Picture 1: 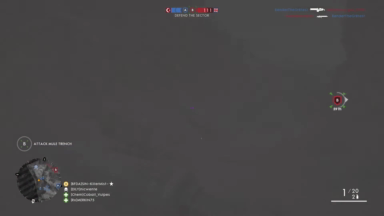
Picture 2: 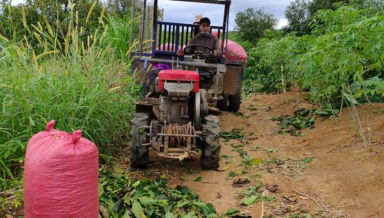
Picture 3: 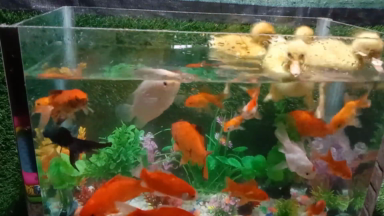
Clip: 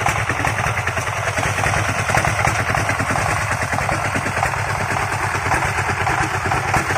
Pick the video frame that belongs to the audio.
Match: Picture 2